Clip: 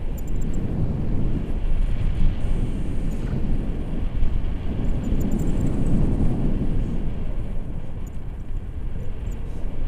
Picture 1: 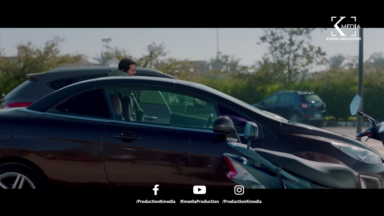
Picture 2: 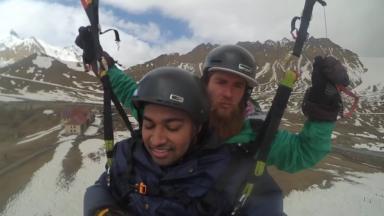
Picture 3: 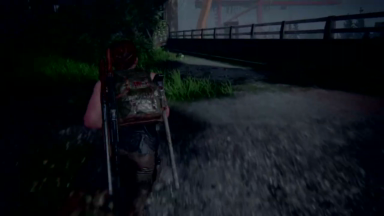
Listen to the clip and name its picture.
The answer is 2